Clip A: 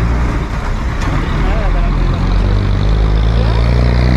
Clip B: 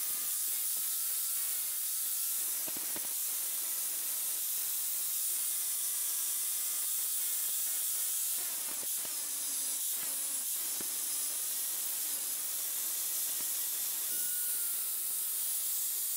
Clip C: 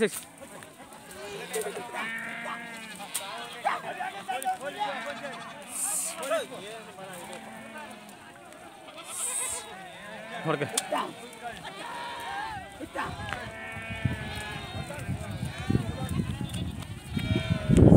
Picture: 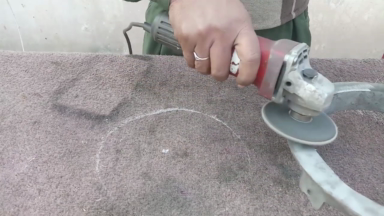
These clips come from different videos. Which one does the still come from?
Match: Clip B